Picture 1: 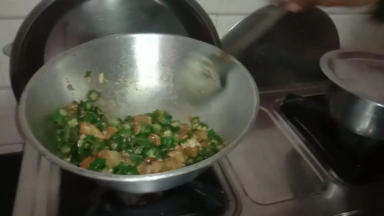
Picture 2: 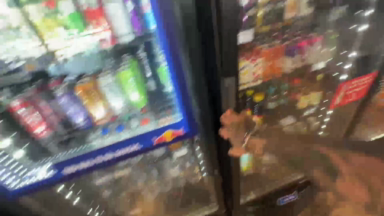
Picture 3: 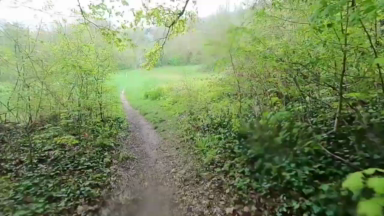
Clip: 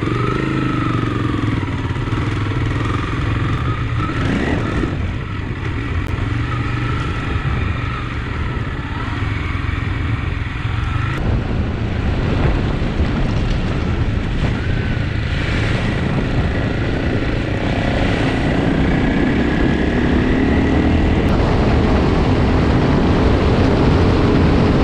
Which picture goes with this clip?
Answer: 3